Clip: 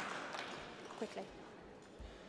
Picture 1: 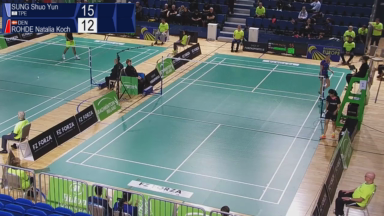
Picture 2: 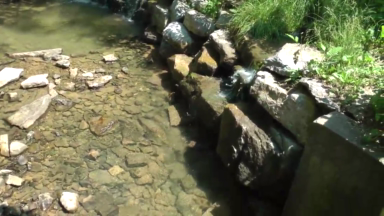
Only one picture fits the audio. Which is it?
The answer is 1